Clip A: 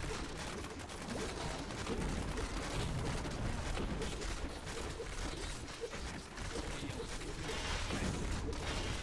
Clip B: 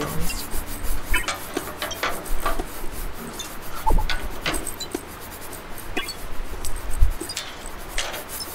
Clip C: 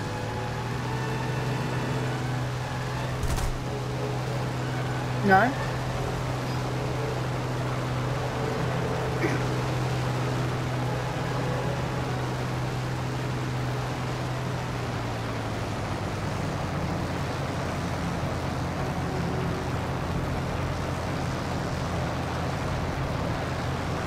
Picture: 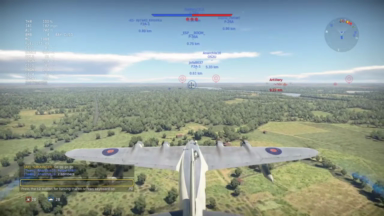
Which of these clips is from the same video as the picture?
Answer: C